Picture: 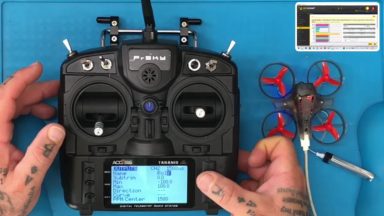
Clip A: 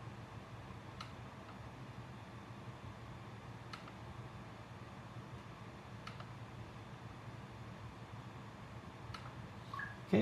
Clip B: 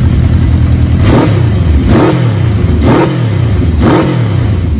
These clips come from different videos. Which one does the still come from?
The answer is A